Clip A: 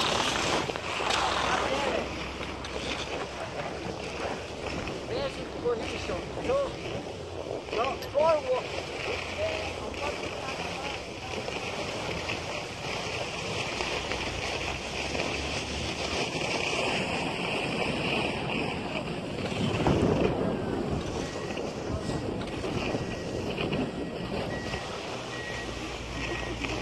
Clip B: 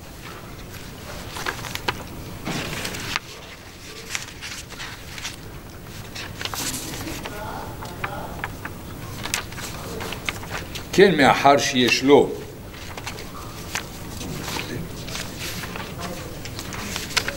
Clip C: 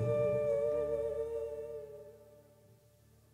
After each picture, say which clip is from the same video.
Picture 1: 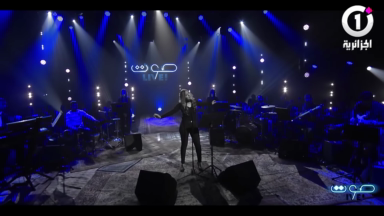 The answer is C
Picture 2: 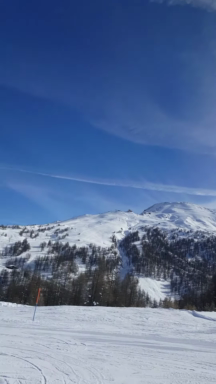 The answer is A